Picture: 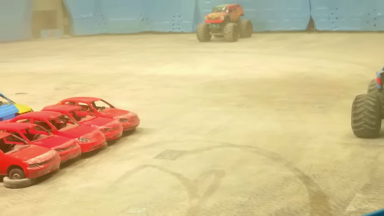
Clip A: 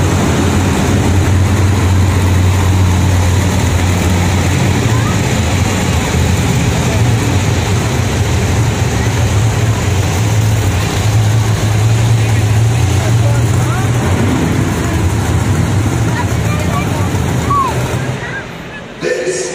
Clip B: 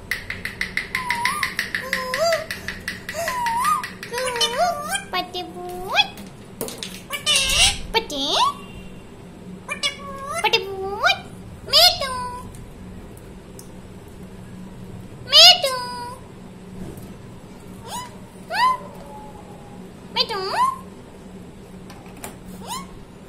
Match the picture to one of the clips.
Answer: A